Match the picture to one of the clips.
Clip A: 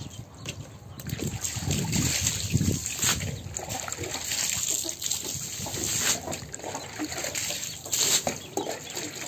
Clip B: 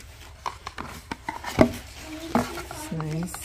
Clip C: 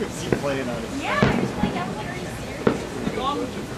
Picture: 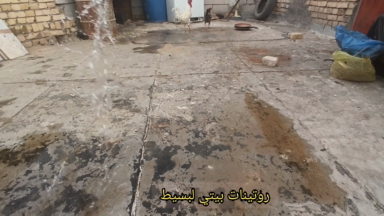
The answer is A